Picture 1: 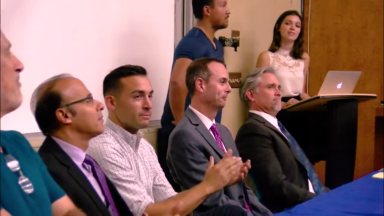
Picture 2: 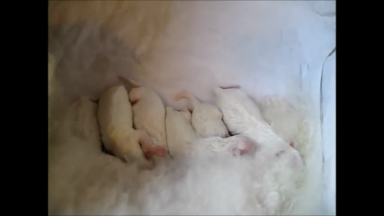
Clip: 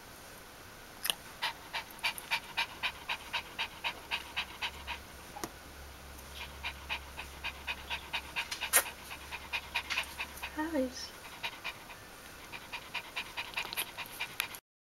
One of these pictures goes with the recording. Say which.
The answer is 2